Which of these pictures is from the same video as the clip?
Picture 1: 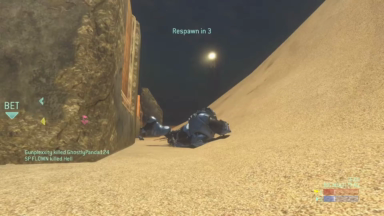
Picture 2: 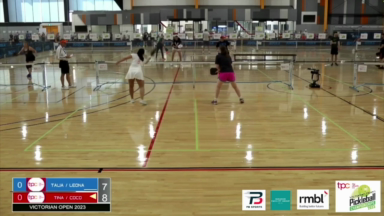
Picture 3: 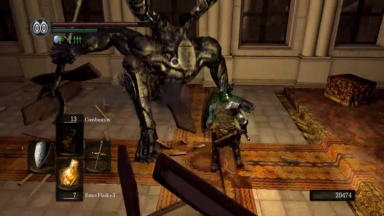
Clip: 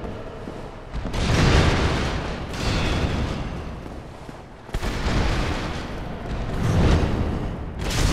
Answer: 3